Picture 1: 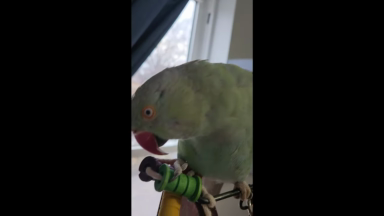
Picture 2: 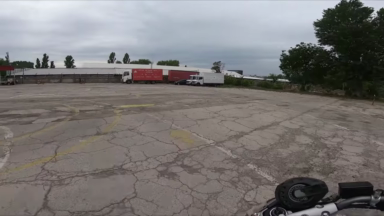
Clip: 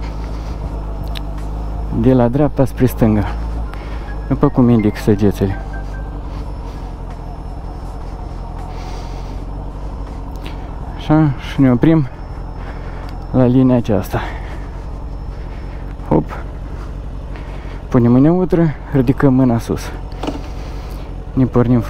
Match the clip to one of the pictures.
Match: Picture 2